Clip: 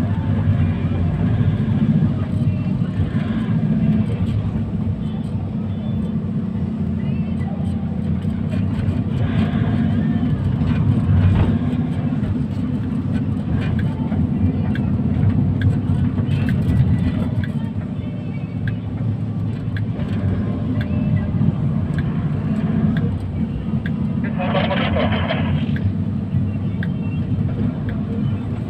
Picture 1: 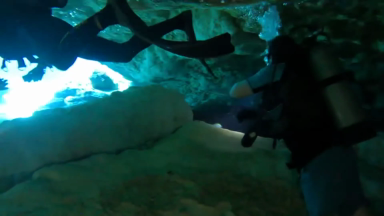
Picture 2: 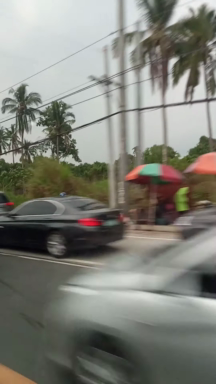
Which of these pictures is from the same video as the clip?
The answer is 2